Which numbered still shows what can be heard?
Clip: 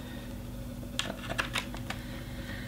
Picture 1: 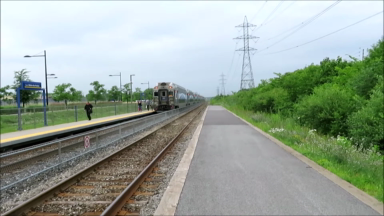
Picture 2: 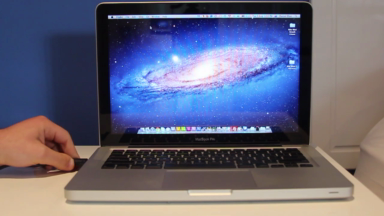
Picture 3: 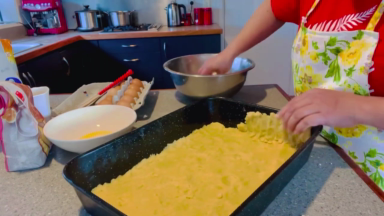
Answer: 2